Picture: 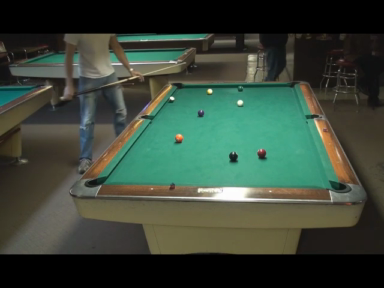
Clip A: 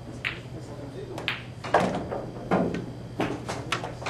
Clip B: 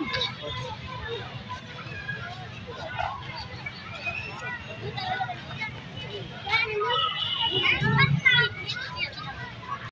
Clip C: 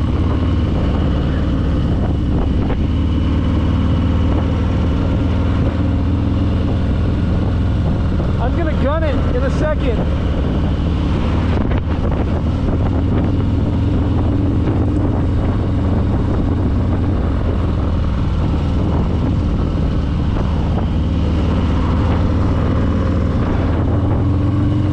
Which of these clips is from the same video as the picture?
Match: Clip A